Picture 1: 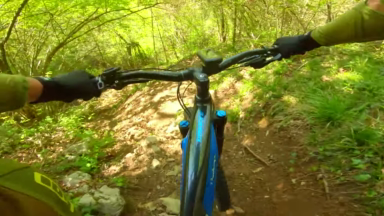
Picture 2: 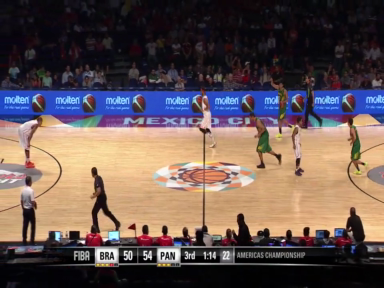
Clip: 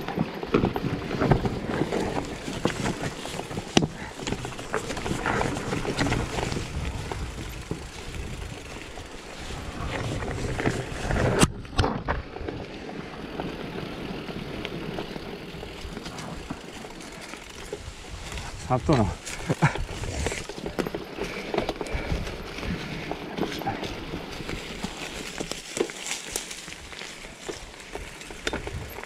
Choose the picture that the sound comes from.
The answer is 1